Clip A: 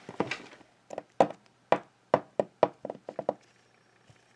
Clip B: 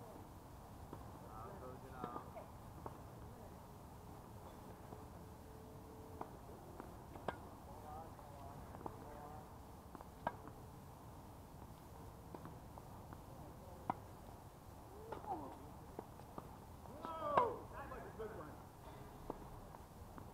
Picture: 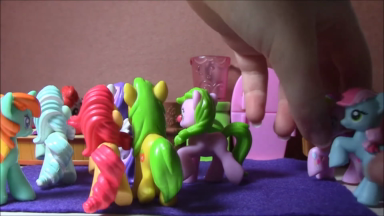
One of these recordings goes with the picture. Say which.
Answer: A